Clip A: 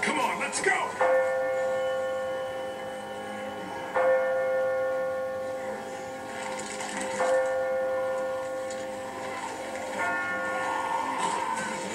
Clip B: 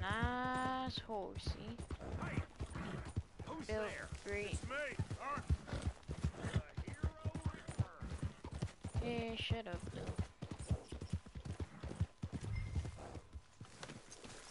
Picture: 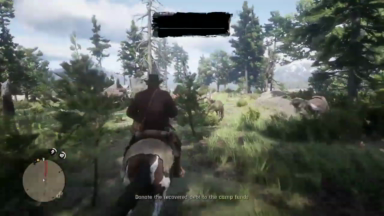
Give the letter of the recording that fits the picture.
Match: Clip B